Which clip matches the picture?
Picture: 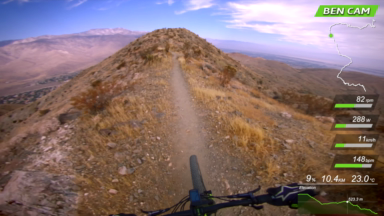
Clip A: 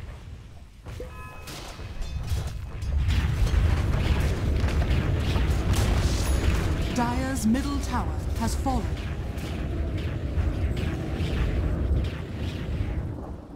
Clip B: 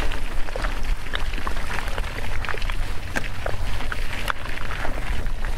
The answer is B